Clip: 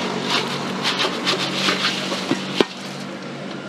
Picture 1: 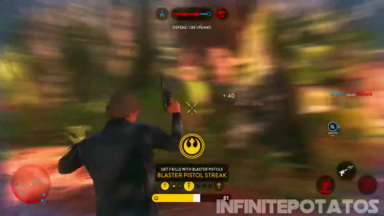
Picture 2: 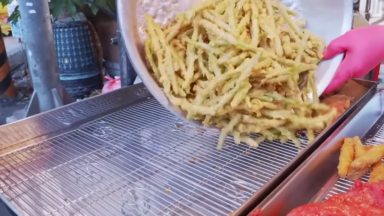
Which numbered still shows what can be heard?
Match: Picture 2